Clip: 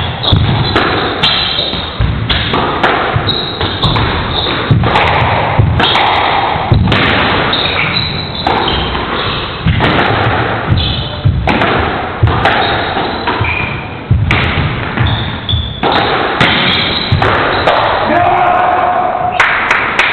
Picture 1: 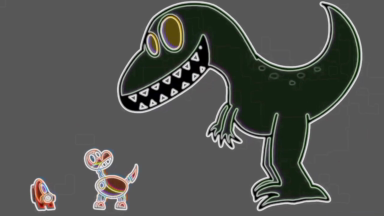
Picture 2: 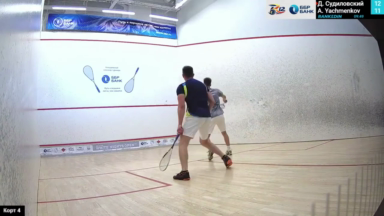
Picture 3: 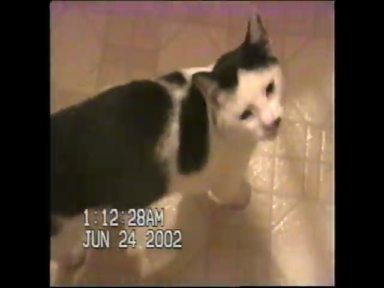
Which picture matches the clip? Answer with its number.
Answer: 2